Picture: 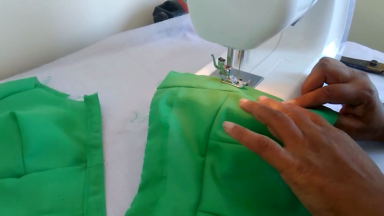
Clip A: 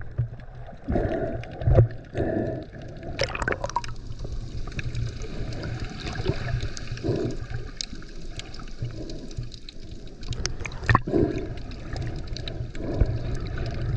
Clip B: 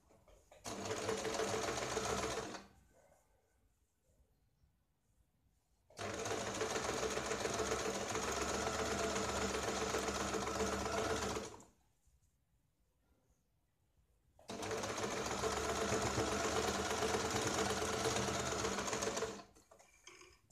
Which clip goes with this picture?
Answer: B